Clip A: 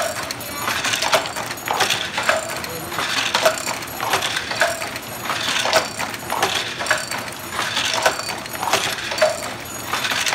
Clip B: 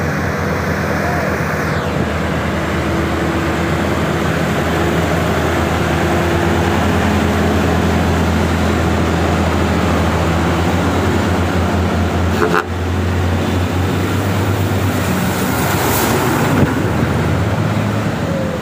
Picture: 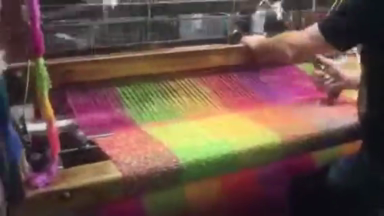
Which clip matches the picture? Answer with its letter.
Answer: A